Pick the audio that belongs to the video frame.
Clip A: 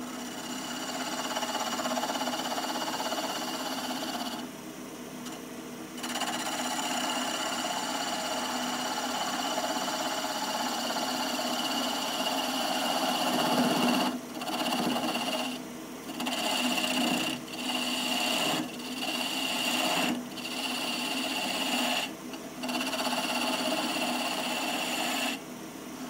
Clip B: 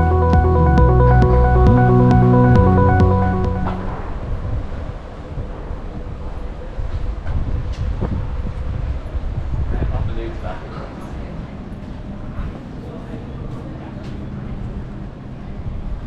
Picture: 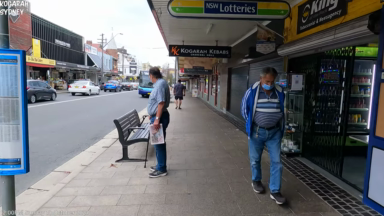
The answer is B